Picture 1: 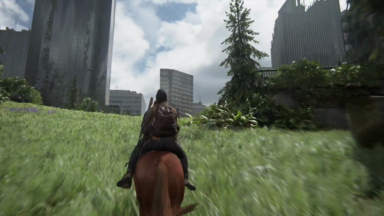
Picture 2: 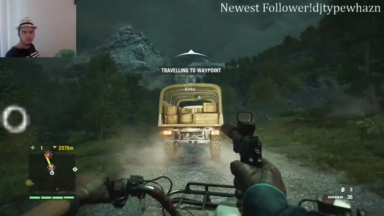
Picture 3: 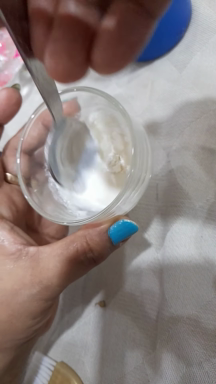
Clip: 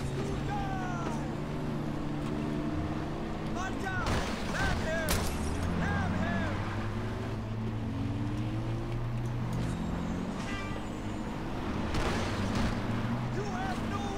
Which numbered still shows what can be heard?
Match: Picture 2